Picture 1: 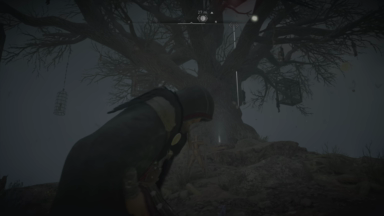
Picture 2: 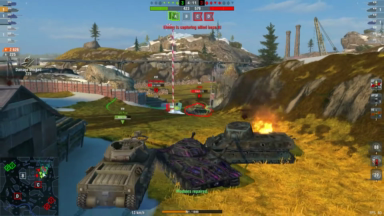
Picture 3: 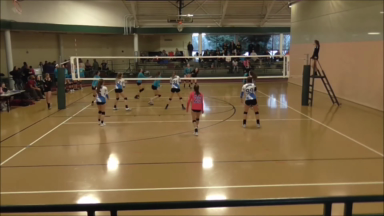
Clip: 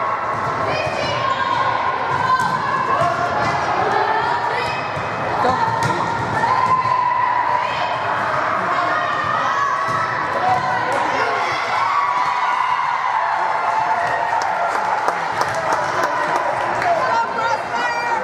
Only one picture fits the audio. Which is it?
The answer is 3